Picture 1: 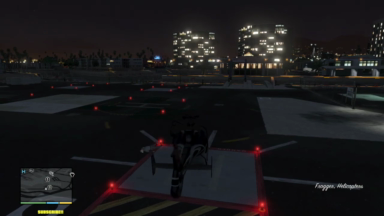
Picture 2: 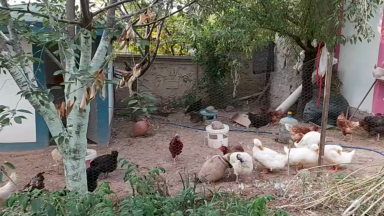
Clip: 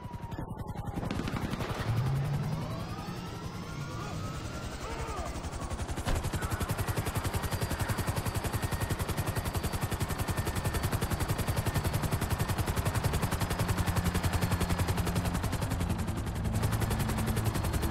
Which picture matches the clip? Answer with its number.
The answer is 1